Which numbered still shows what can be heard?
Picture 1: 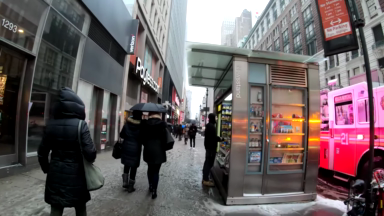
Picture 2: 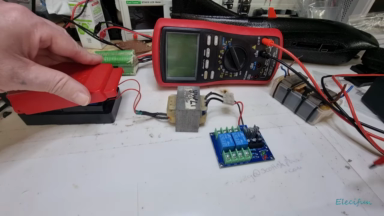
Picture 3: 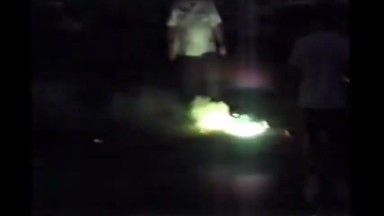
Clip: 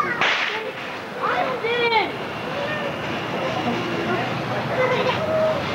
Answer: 3